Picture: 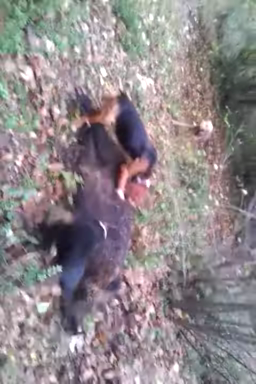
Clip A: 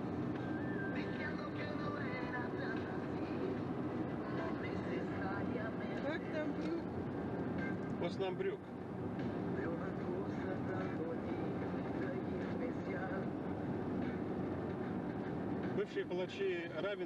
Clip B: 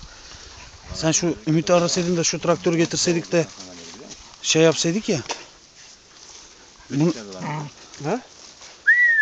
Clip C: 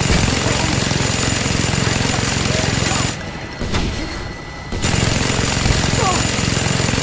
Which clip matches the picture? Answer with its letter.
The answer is B